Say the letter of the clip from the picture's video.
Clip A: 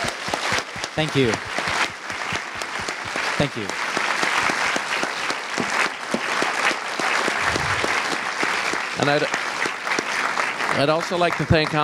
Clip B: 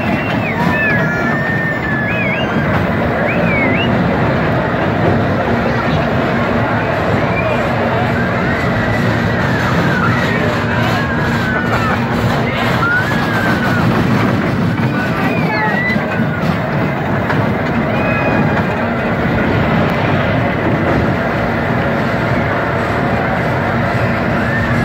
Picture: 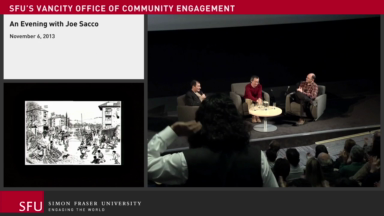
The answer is A